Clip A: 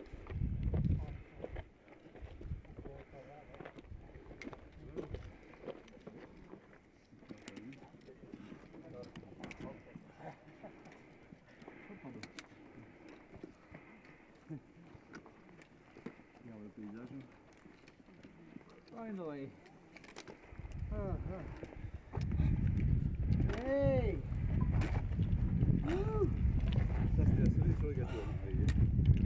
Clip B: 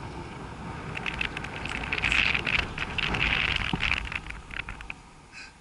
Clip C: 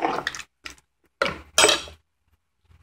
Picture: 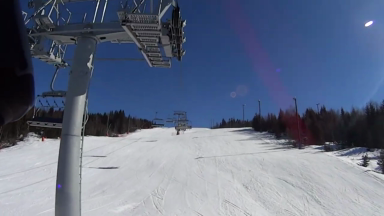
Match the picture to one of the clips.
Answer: B